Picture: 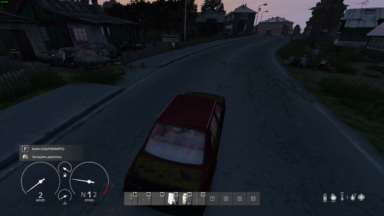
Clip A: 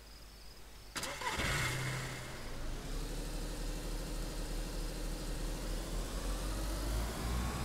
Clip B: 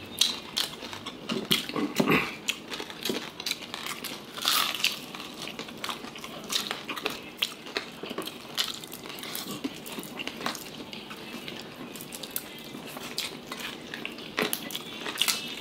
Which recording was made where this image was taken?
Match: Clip A